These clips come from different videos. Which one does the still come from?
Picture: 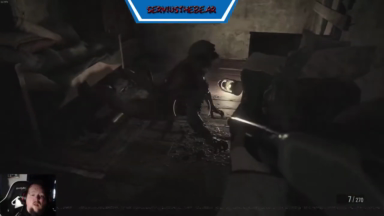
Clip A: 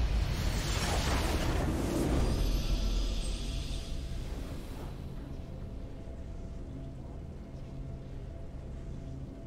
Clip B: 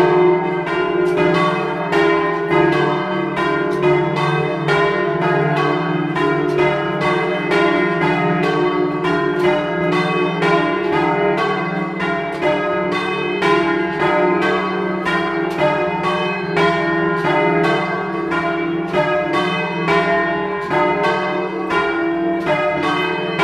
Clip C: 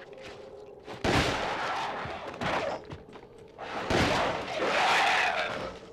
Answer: C